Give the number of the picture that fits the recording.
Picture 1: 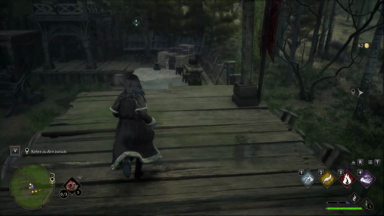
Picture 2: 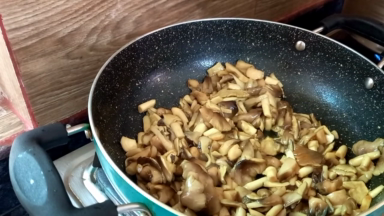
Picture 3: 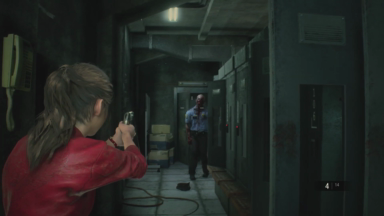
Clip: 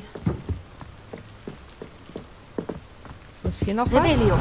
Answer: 1